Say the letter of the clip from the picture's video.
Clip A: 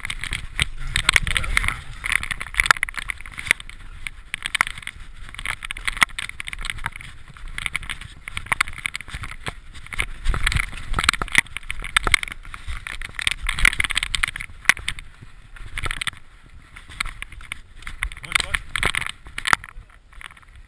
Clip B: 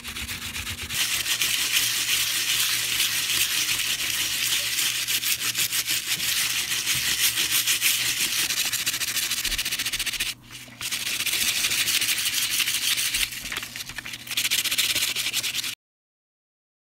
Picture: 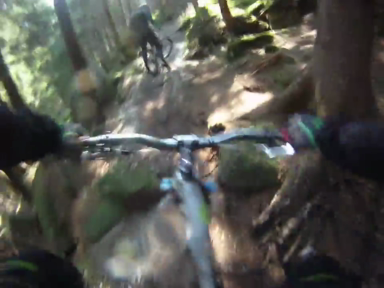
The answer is A